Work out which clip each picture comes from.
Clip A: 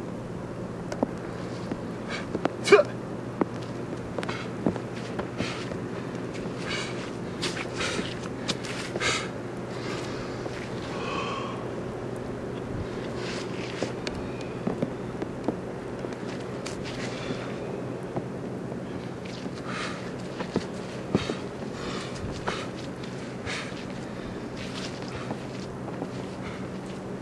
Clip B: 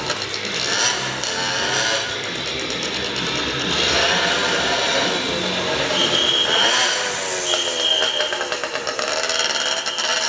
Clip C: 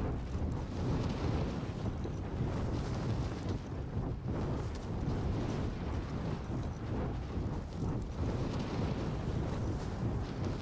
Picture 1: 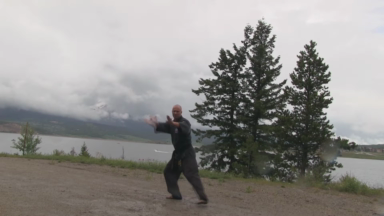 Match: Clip A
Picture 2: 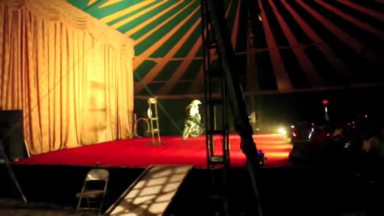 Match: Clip B